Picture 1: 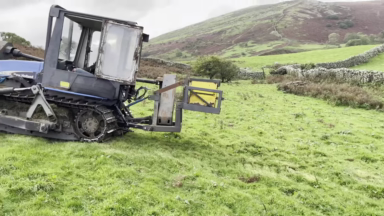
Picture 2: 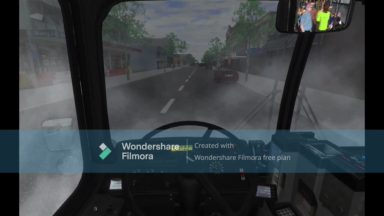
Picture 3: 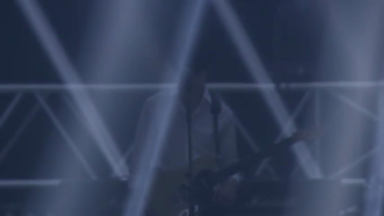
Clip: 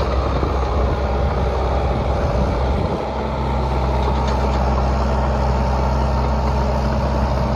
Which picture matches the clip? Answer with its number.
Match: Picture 1